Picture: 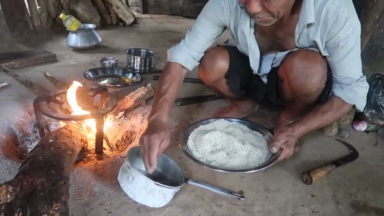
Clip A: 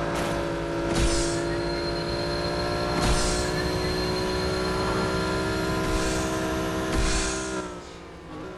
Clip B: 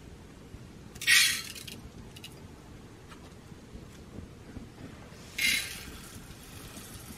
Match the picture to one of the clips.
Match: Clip B